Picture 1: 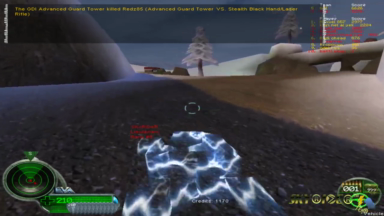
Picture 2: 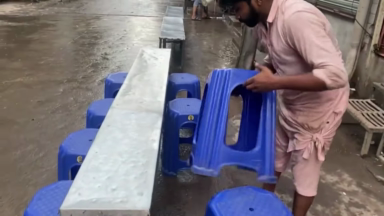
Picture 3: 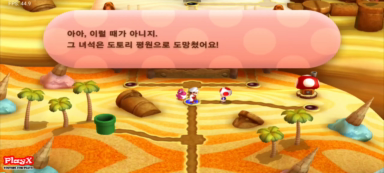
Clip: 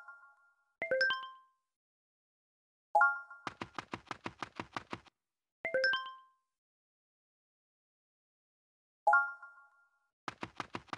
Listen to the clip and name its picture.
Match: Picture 3